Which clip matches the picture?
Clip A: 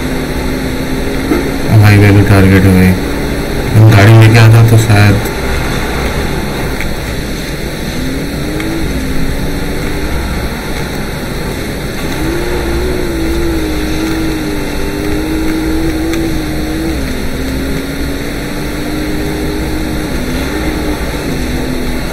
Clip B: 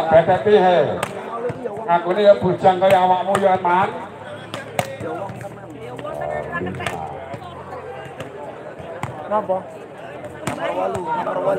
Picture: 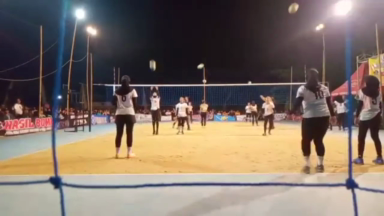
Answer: B